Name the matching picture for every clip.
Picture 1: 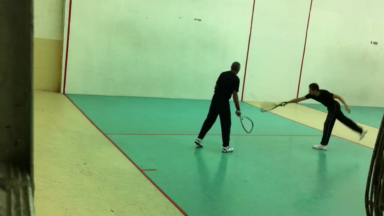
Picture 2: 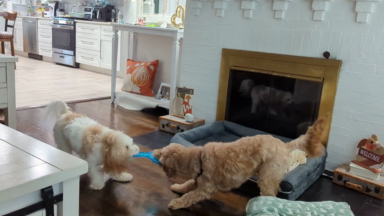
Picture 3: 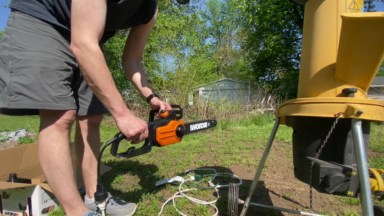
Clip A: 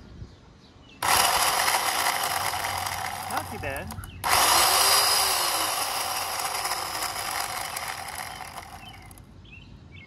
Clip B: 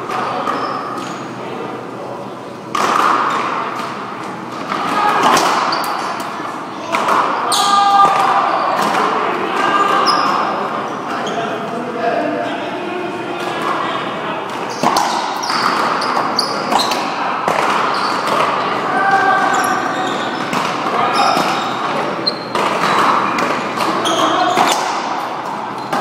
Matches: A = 3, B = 1